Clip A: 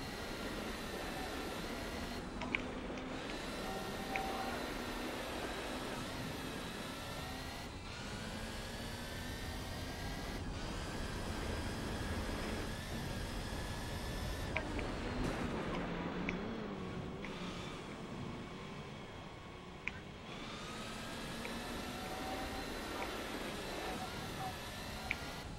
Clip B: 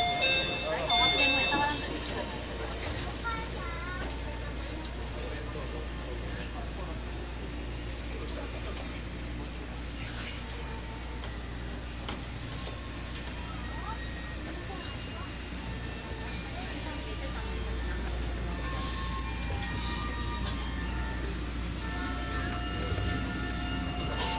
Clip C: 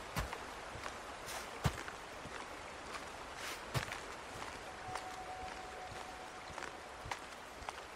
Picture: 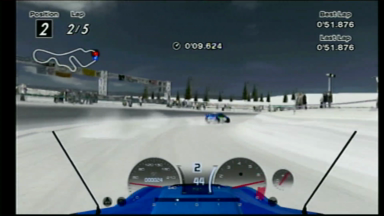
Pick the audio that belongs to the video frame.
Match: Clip A